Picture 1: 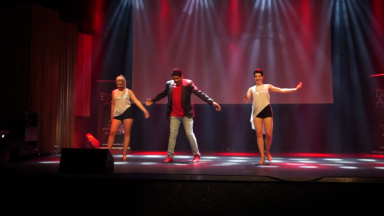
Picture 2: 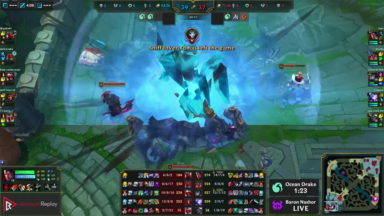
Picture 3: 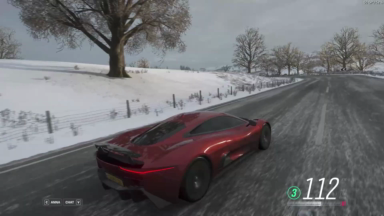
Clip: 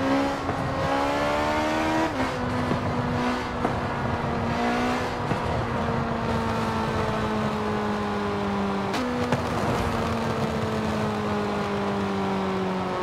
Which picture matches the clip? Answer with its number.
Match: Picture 3